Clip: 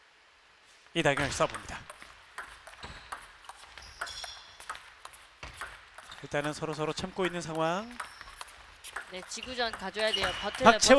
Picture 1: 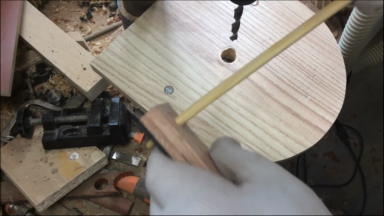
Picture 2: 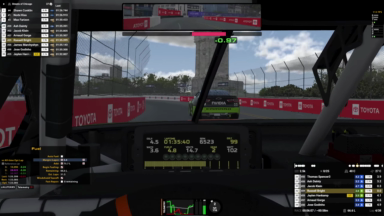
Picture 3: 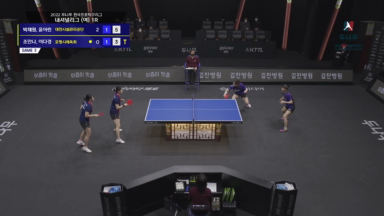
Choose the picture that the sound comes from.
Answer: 3